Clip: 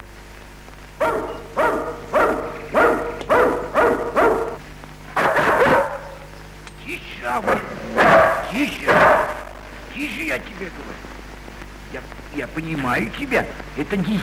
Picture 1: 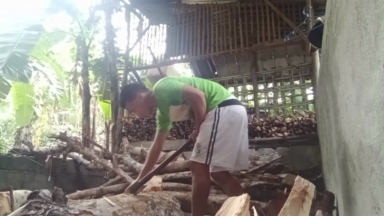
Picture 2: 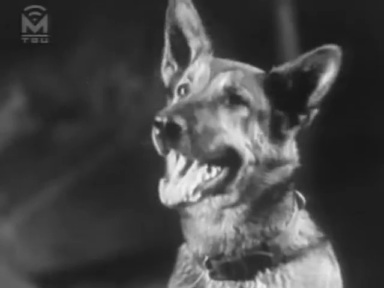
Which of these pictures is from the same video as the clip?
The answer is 2